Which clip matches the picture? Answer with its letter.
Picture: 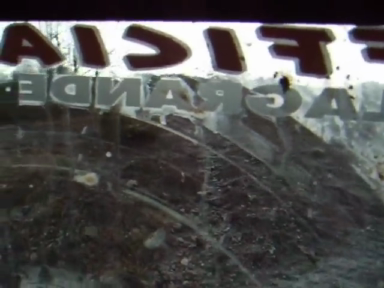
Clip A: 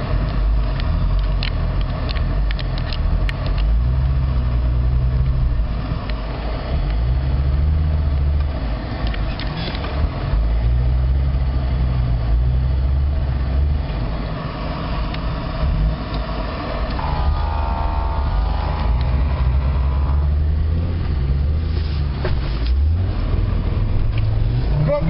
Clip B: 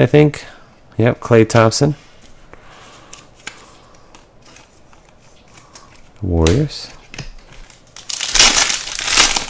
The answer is A